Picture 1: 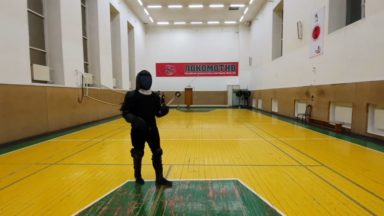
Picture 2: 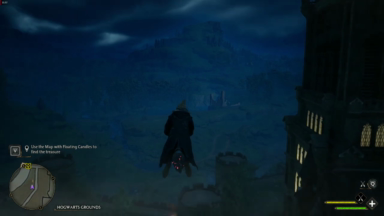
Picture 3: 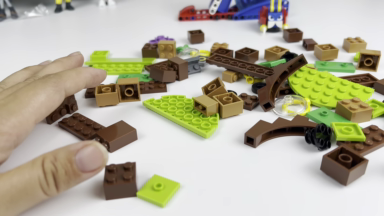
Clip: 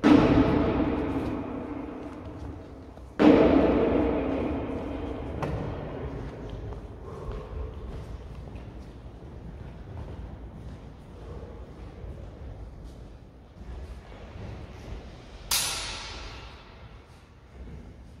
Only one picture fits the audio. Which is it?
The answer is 1